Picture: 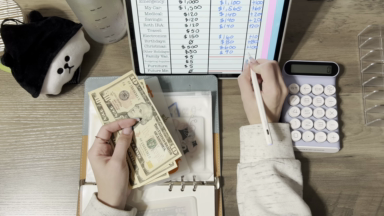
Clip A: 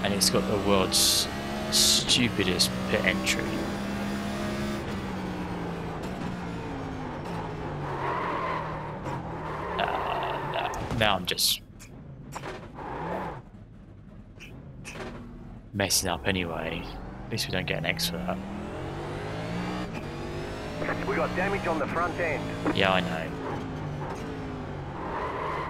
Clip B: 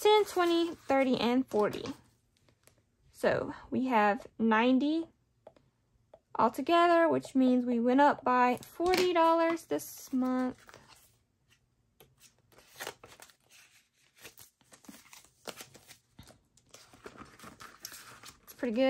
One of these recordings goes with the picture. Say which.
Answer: B